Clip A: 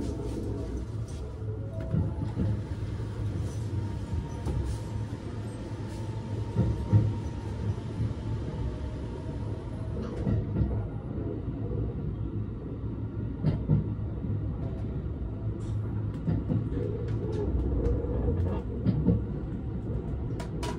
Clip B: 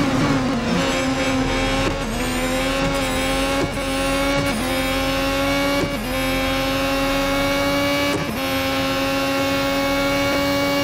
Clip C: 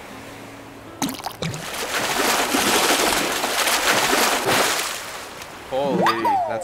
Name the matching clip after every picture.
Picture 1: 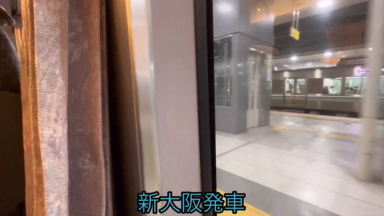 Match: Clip A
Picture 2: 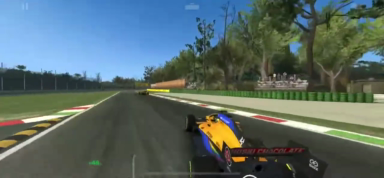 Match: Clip B